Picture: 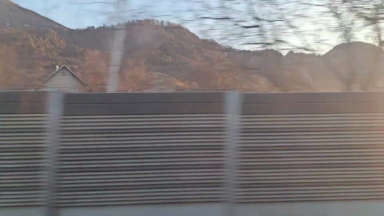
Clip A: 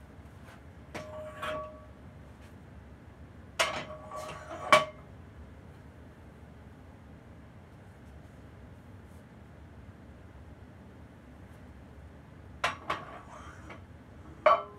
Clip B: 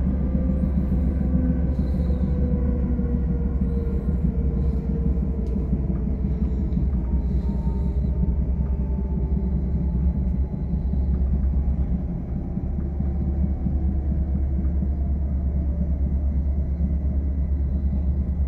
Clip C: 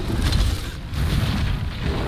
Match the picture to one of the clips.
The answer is B